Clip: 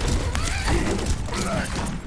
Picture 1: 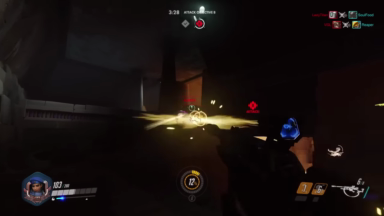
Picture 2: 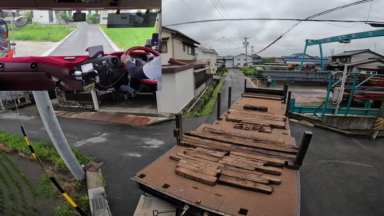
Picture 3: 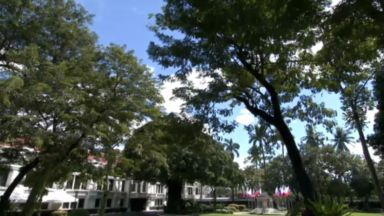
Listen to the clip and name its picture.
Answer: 1